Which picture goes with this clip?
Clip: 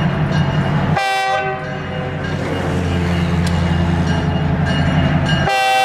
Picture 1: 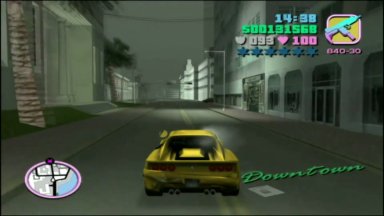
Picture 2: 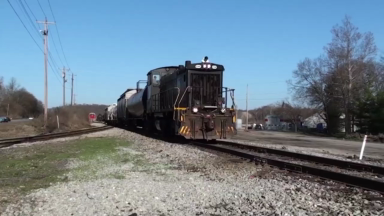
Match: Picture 2